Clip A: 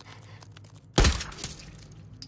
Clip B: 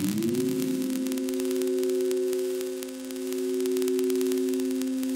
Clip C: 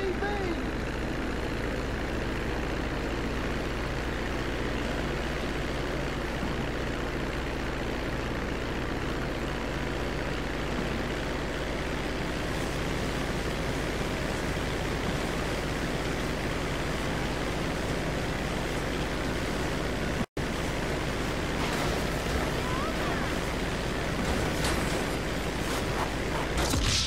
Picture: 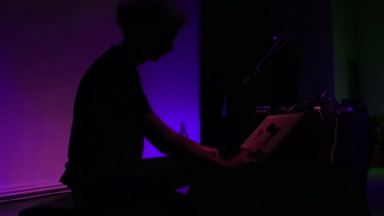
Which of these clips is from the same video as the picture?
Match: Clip B